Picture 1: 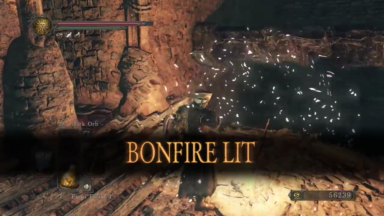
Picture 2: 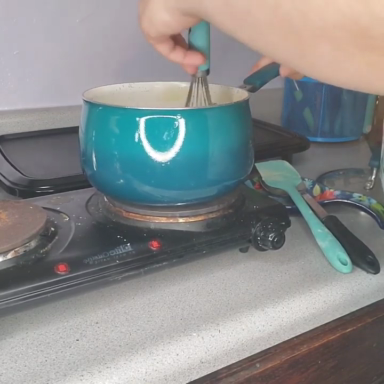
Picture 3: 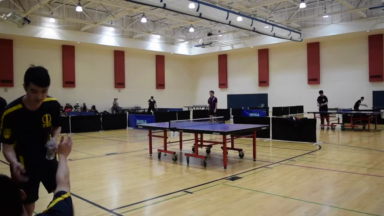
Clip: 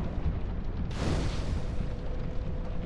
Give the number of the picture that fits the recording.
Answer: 1